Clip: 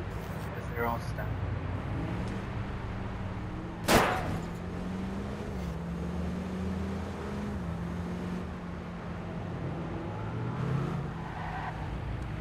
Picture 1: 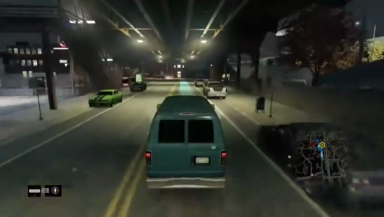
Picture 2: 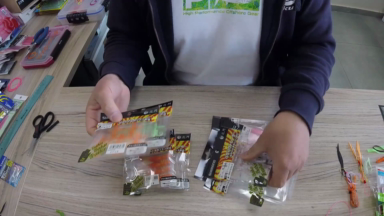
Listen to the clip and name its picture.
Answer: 1